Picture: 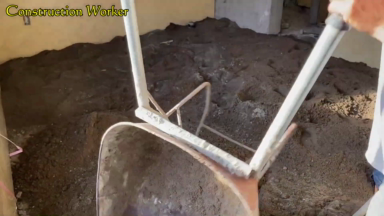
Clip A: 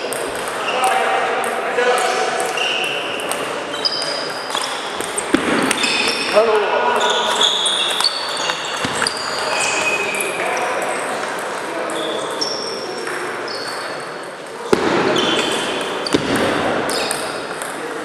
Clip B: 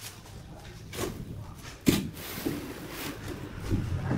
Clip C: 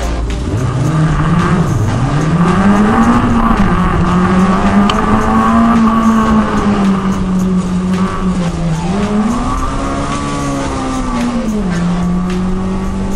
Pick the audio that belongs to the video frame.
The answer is B